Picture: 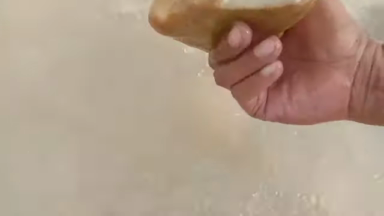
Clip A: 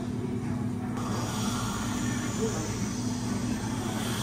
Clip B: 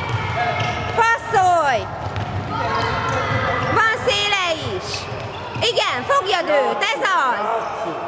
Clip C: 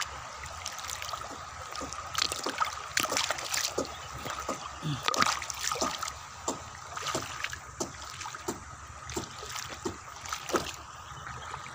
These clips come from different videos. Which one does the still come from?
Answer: C